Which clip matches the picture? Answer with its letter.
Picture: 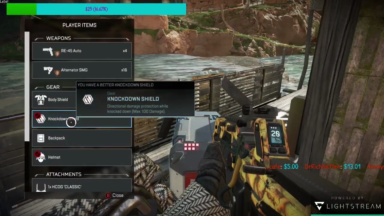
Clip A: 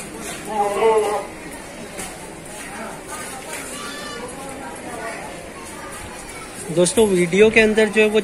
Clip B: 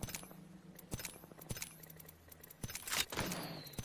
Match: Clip B